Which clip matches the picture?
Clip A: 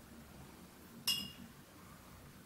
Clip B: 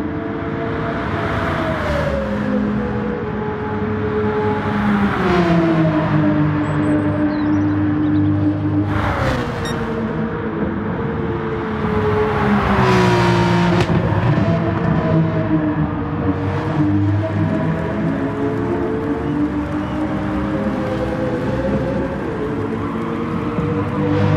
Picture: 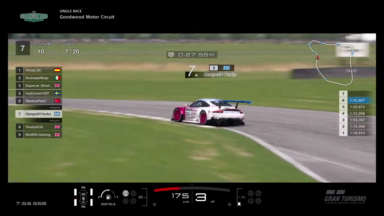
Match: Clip B